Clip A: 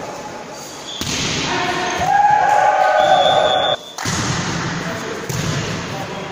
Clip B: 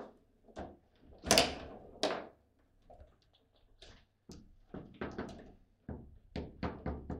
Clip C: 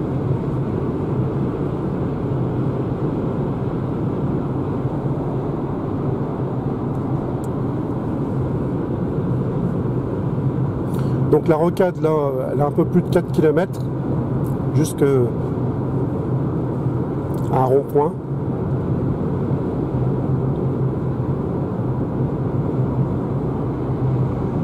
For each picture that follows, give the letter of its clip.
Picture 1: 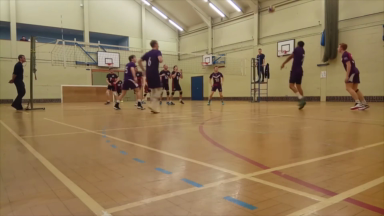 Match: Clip A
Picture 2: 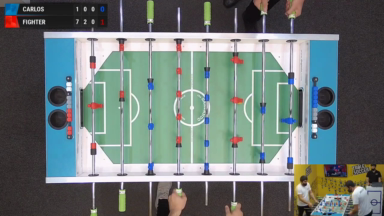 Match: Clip B